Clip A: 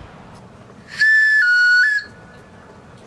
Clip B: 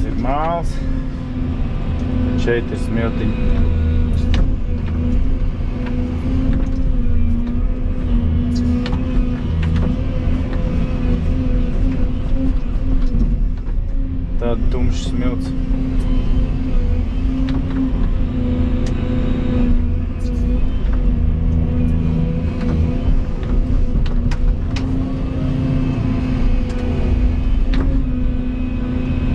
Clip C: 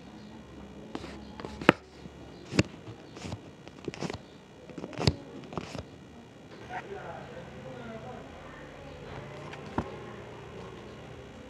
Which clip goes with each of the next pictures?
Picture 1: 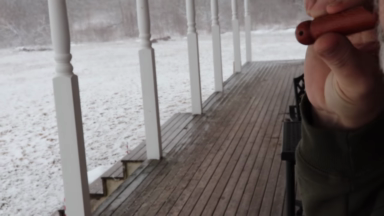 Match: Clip A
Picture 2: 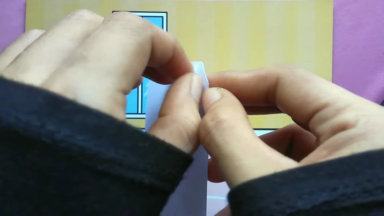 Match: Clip C